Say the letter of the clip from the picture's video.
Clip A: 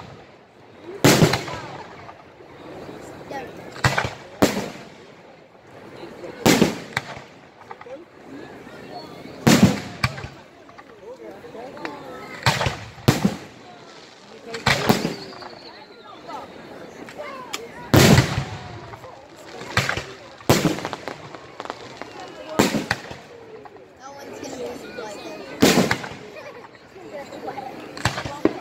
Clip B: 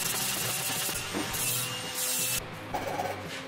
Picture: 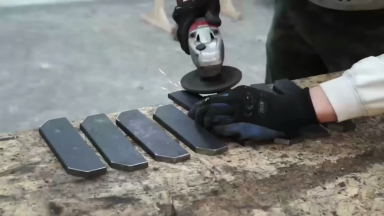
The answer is B